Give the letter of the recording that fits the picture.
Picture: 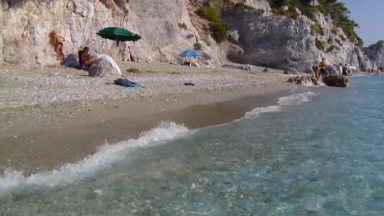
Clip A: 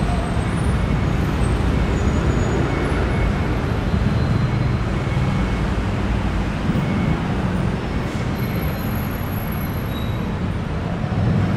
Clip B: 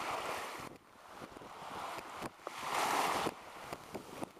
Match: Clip B